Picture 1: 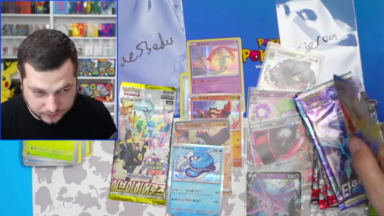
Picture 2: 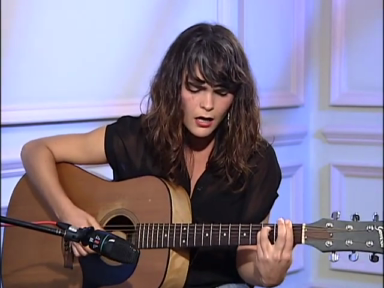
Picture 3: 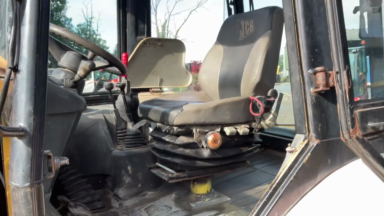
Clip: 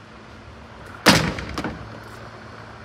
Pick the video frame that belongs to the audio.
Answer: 3